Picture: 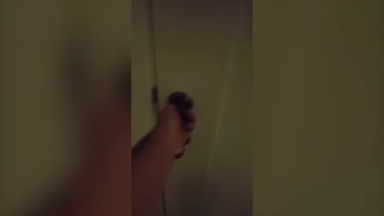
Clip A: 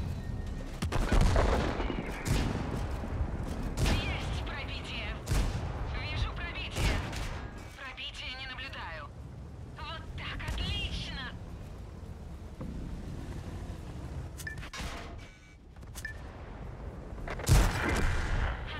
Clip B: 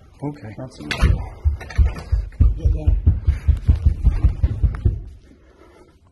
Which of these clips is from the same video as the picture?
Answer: B